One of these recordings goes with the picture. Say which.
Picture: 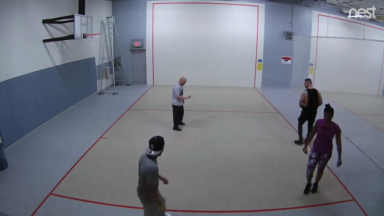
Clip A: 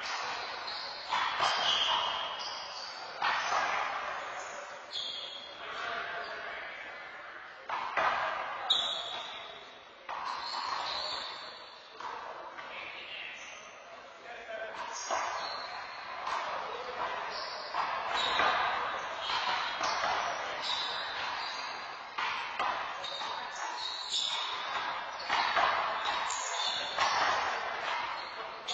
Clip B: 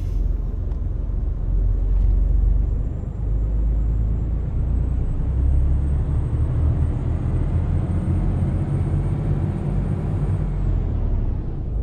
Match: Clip A